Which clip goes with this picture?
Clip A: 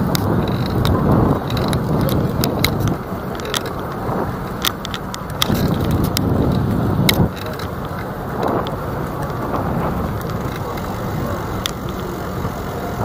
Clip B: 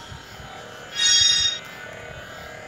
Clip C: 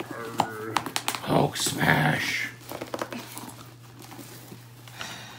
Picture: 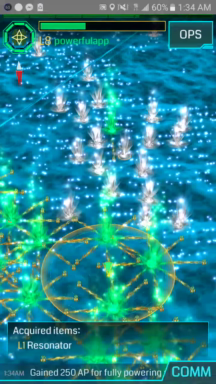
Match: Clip B